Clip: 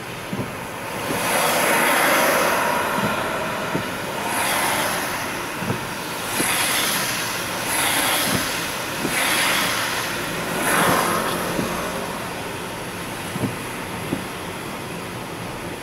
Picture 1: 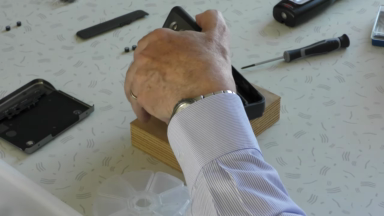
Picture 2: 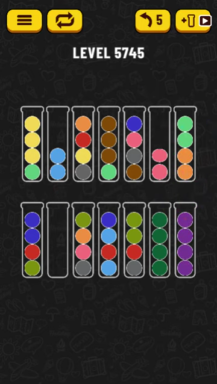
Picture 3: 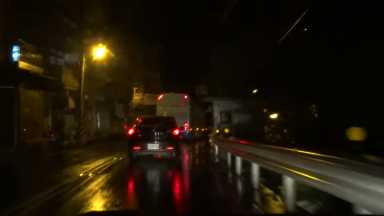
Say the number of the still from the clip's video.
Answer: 3